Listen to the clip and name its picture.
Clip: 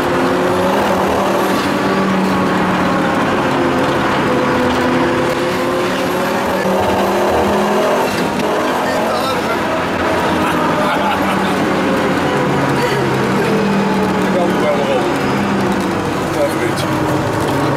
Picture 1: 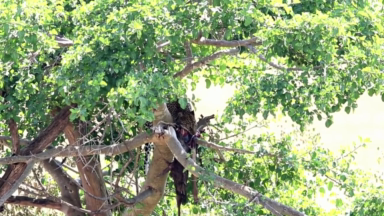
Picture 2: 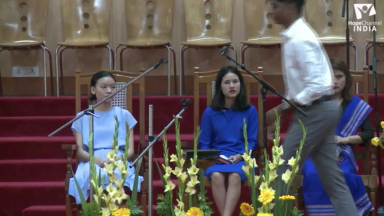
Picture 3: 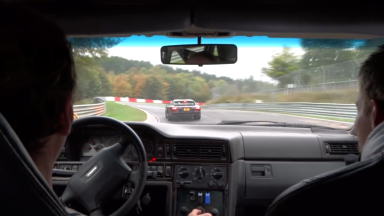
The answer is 3